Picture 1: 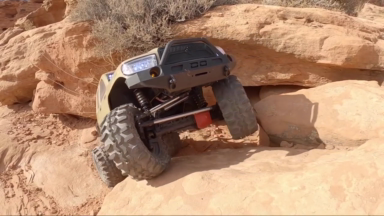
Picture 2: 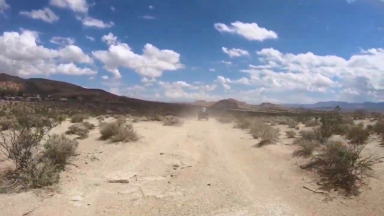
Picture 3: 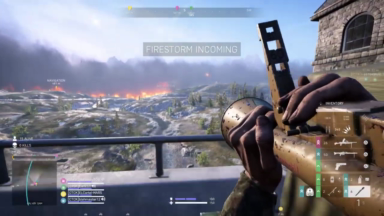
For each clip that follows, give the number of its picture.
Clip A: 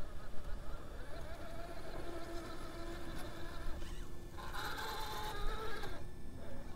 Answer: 1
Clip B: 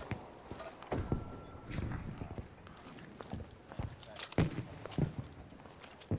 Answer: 3